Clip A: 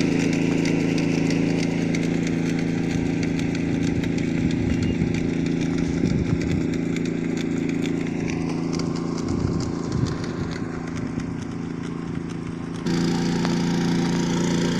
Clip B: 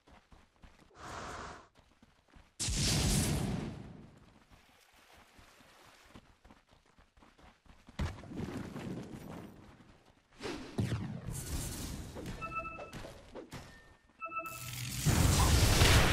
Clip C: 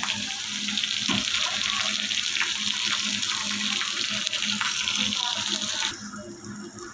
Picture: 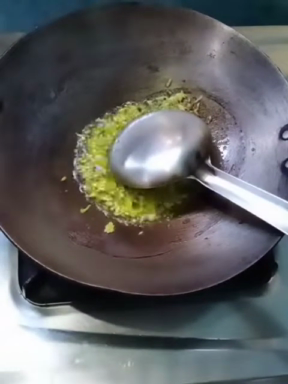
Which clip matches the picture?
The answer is C